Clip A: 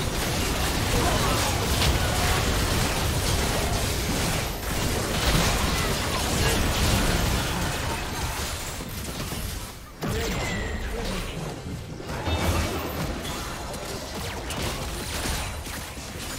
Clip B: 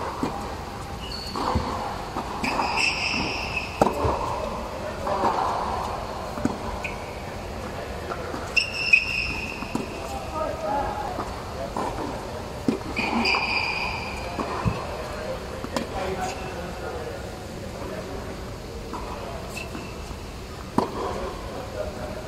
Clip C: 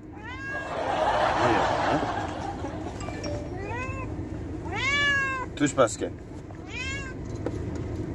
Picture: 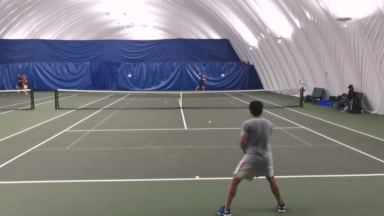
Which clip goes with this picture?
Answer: B